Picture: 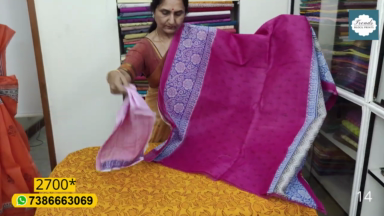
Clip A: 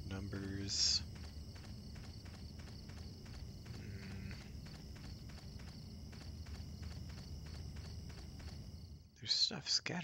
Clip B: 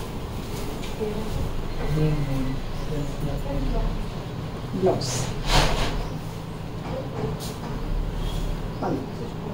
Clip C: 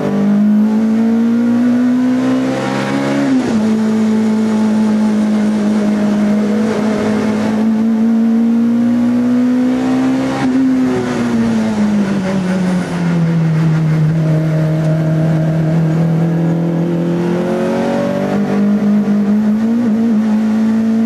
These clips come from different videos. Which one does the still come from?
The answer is B